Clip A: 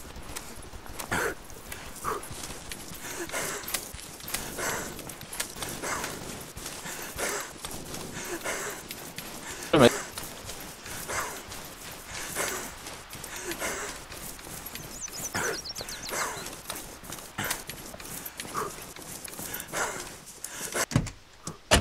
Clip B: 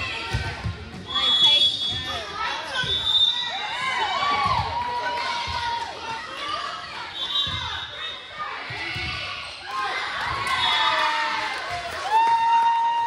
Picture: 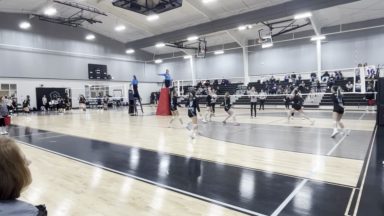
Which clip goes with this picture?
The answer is B